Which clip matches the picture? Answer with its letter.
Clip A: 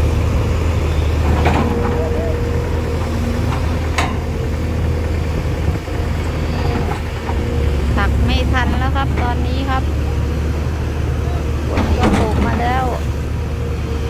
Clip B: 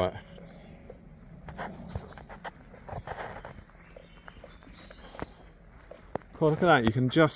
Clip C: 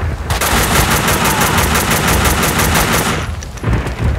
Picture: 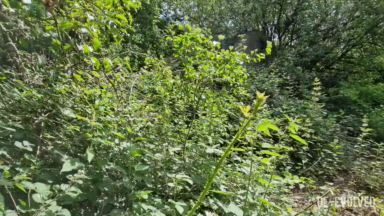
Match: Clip B